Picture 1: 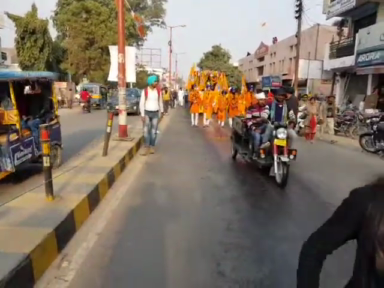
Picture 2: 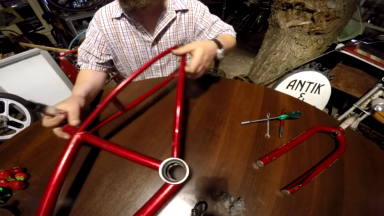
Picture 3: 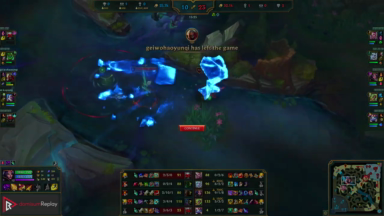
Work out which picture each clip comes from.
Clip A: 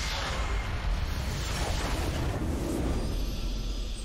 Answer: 3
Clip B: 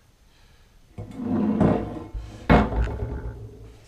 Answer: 2